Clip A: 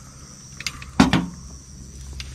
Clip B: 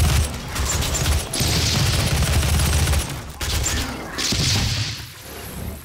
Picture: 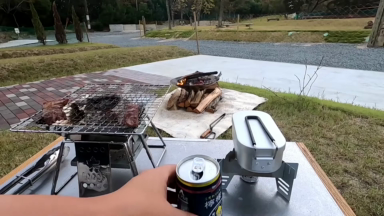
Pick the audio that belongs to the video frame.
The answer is A